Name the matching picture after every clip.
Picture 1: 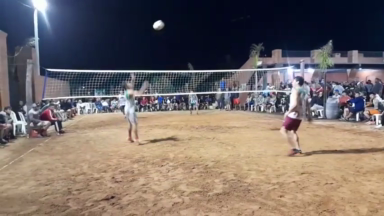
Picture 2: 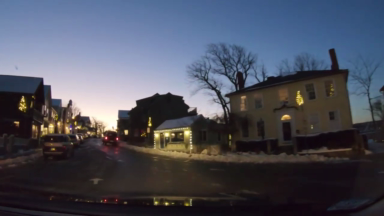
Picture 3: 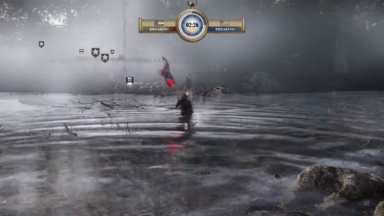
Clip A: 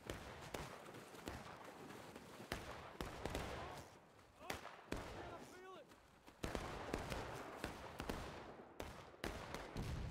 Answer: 3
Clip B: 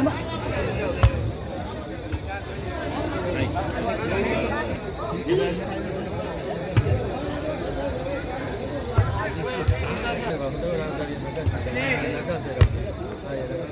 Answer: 1